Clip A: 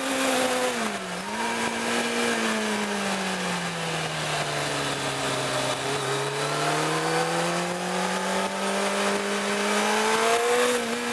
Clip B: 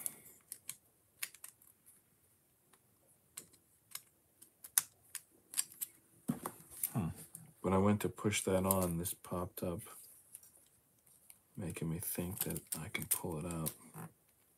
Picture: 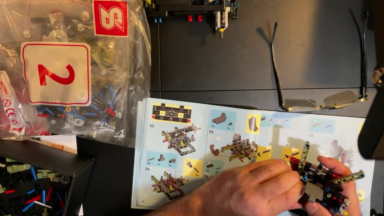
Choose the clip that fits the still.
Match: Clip B